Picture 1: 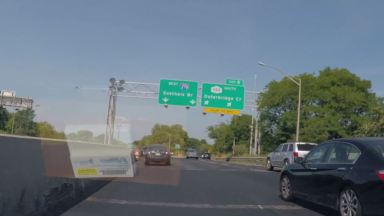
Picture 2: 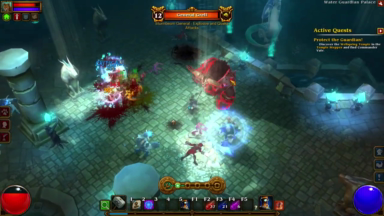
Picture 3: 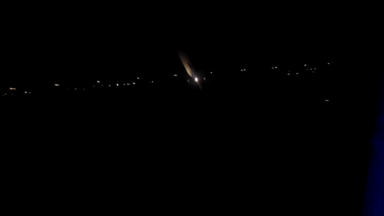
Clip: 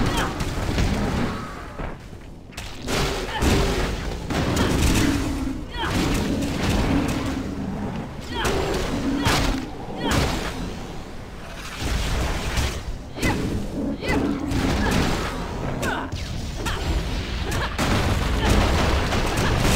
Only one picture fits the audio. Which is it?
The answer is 2